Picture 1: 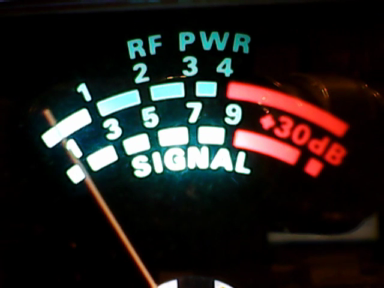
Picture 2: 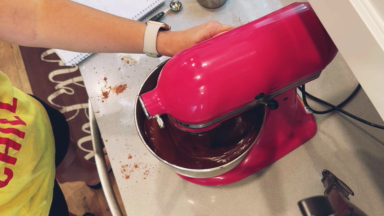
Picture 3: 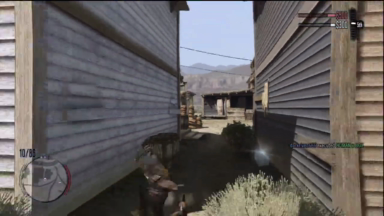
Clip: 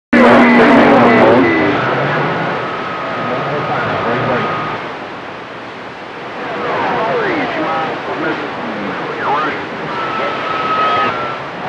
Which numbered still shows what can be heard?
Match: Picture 1